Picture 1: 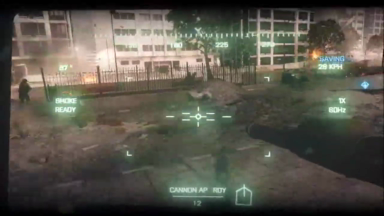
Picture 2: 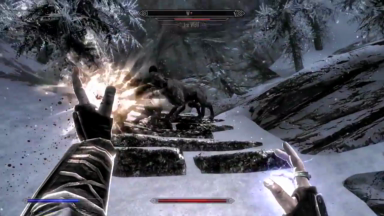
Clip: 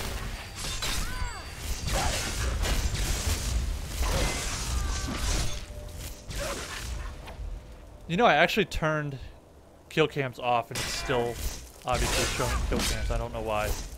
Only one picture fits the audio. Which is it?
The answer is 2